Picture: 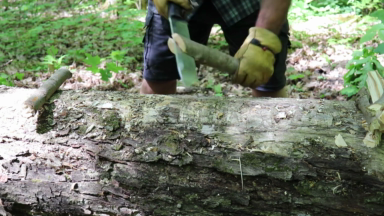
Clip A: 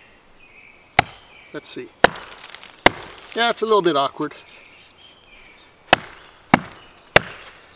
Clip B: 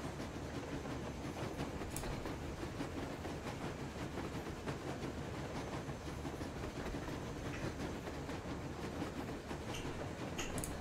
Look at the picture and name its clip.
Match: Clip A